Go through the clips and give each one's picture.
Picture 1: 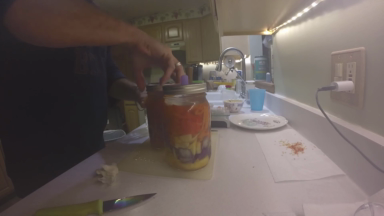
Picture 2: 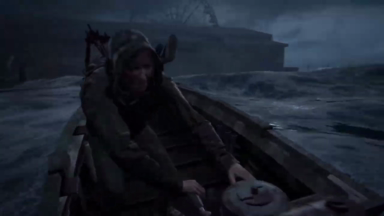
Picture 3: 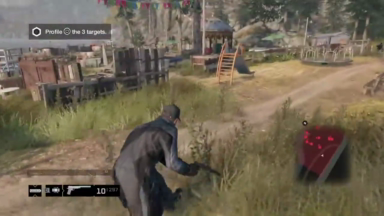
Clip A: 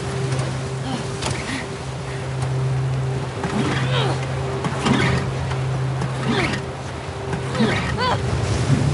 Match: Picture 2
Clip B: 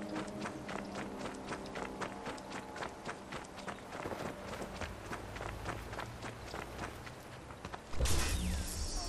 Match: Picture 3